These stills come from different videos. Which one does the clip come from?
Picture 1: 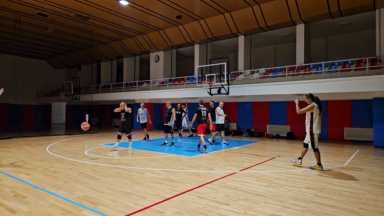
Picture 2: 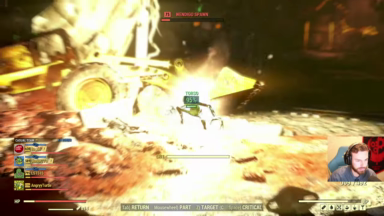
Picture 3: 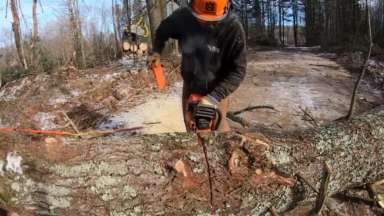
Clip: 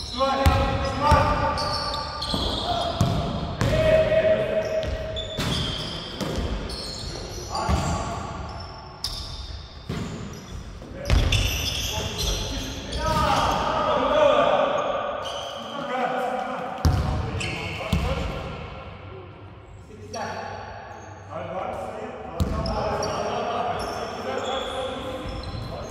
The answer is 1